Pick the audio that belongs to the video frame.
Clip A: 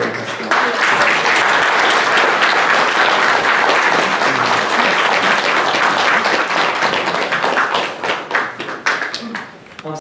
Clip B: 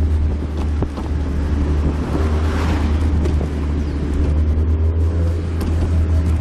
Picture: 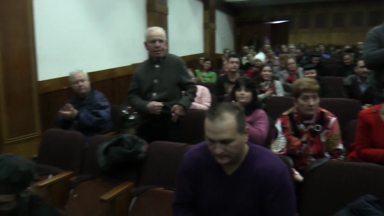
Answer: A